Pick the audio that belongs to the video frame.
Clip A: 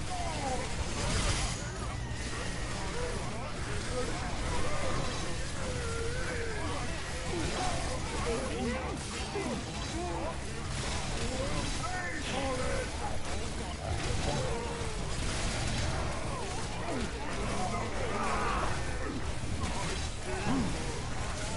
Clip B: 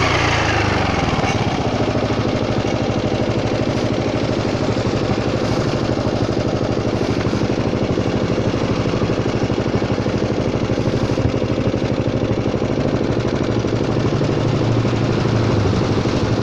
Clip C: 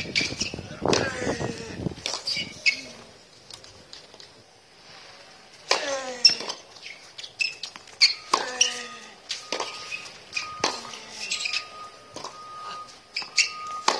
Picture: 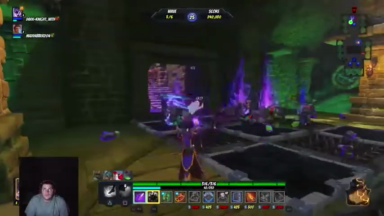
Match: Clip A